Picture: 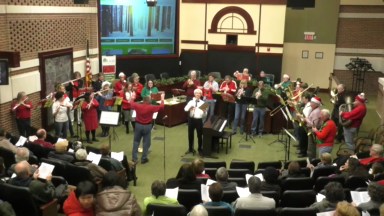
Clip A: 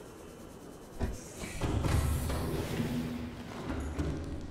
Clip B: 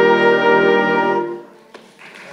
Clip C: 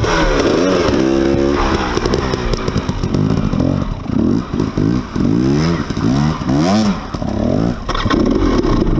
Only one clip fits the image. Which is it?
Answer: B